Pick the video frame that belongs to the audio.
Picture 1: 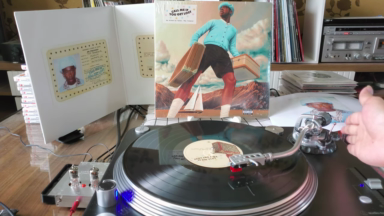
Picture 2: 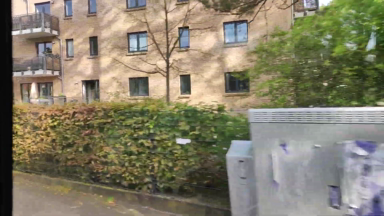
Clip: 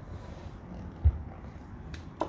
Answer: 1